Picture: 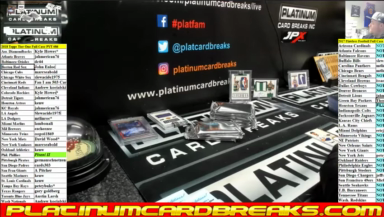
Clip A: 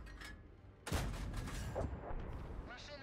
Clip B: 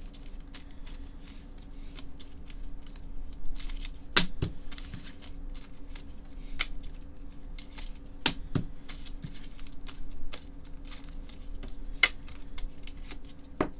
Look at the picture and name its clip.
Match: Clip B